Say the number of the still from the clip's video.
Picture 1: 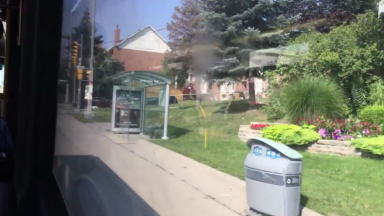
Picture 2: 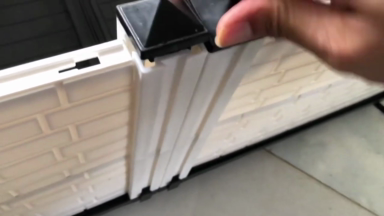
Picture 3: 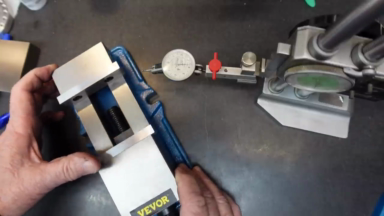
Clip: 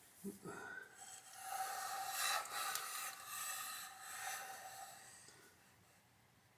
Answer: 3